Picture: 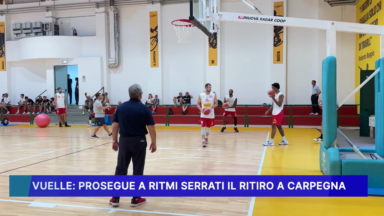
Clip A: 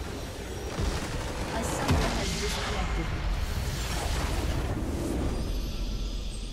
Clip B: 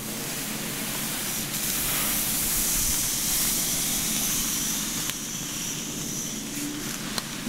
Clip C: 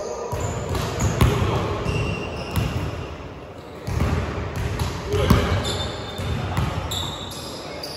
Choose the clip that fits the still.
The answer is C